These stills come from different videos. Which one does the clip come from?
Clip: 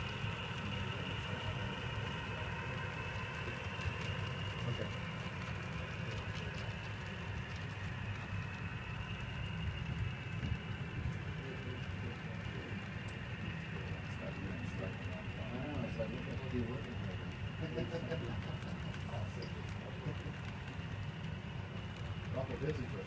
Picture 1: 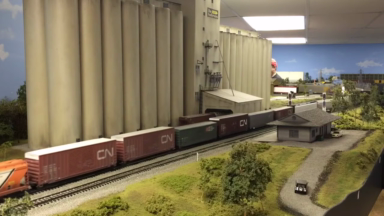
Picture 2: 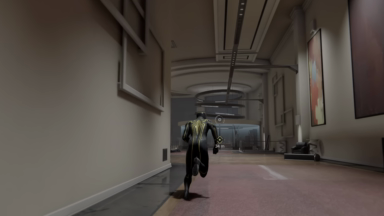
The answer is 1